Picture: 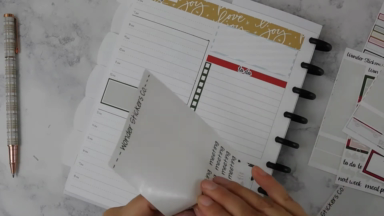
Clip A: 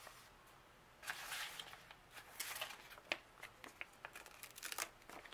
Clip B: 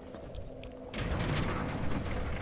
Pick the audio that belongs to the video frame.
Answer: A